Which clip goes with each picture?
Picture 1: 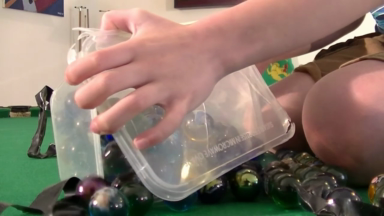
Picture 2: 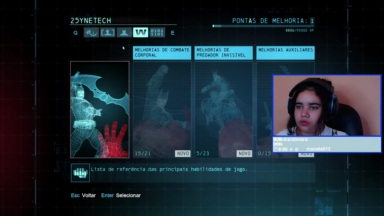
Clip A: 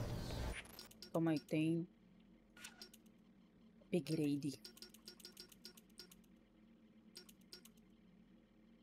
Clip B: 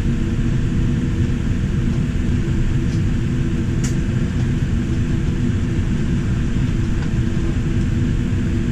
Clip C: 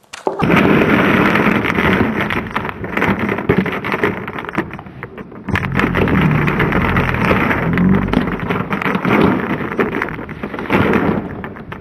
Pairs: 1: C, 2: A